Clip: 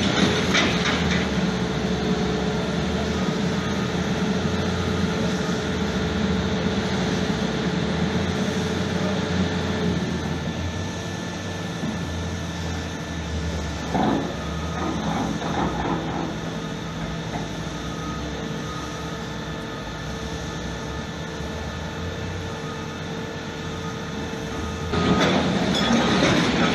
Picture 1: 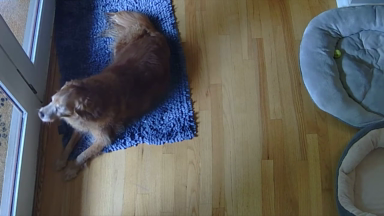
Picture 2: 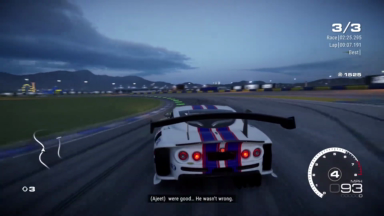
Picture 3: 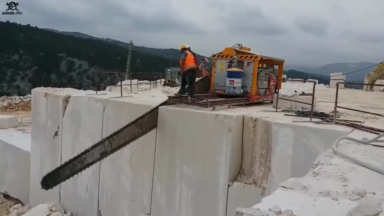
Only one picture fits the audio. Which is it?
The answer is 3